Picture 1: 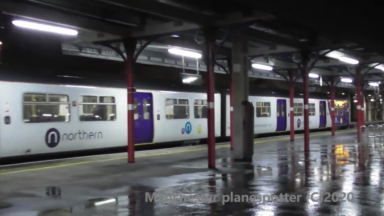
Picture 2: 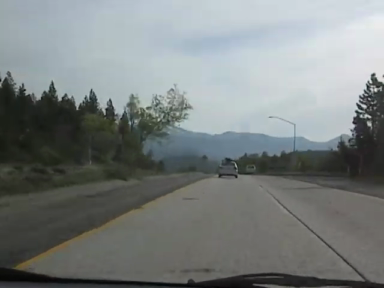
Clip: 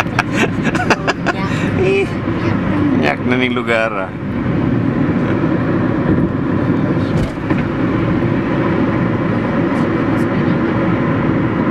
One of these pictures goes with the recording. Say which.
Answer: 2